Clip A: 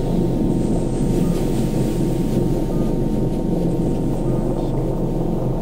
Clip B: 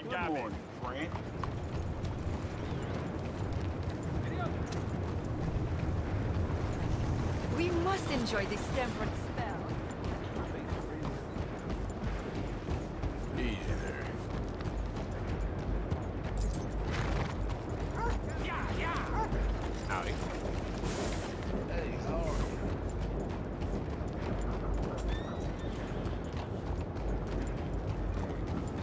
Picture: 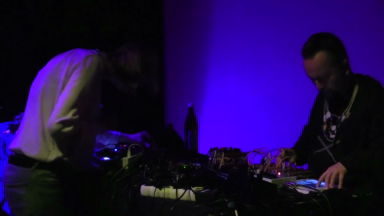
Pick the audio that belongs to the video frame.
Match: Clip A